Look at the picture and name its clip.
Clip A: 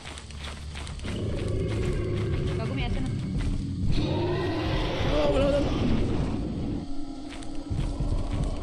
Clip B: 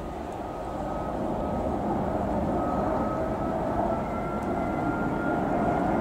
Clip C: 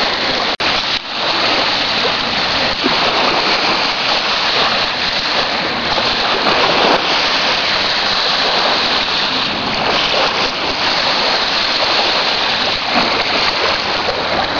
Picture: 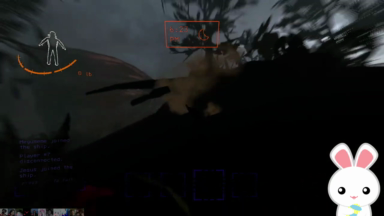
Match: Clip A